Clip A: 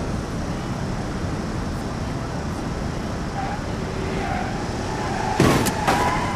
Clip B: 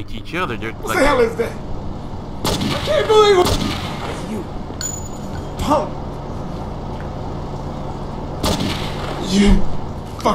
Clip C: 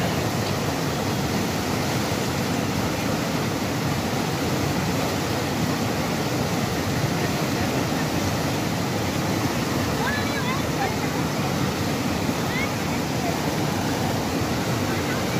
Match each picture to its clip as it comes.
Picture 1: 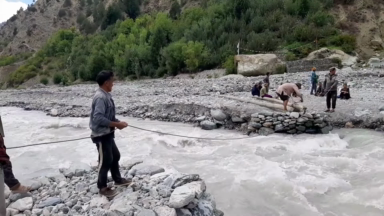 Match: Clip C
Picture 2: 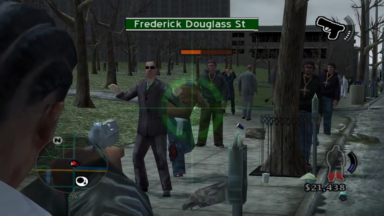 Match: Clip B